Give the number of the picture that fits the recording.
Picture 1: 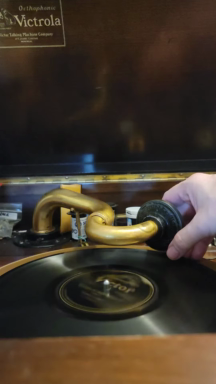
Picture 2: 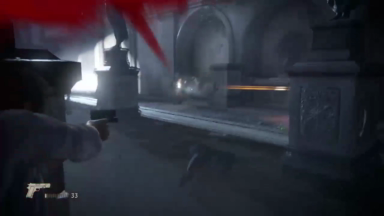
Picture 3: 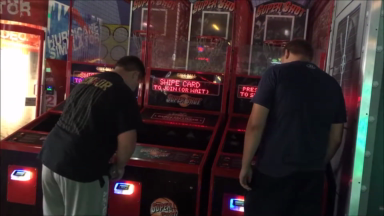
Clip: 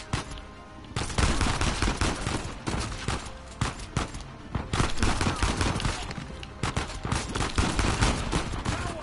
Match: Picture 2